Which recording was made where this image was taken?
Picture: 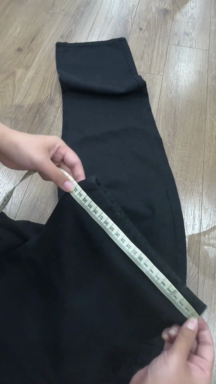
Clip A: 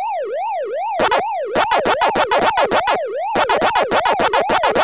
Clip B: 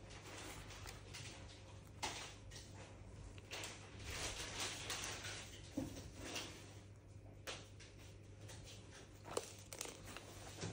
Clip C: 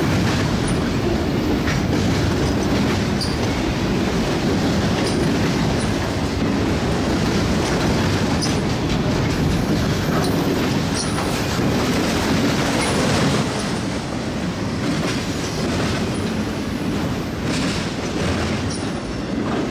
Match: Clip B